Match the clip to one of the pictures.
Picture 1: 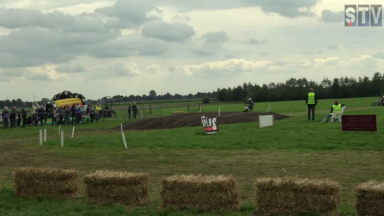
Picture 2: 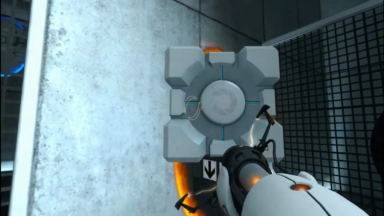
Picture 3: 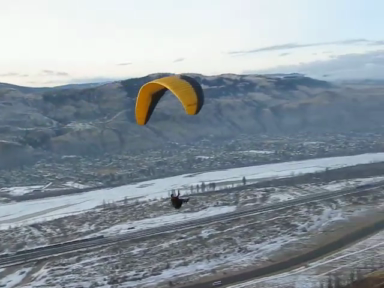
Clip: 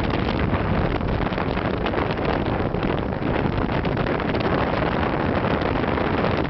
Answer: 3